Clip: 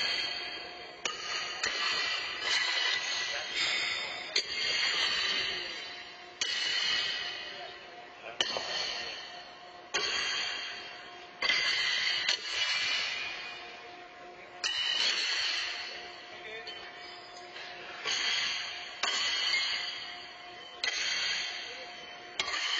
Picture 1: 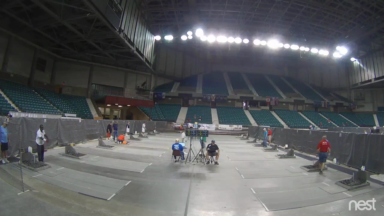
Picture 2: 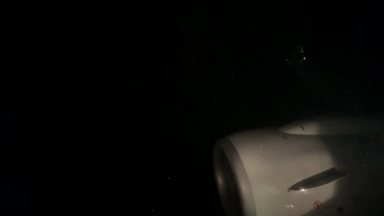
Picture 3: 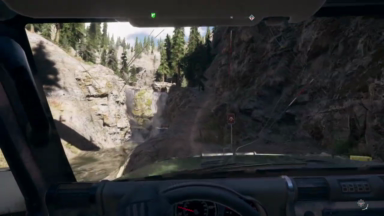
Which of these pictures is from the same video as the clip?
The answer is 1